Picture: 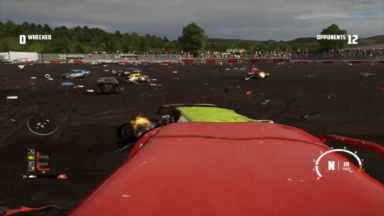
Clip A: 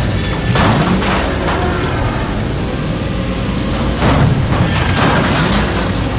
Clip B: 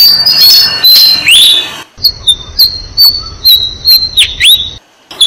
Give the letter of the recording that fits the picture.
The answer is A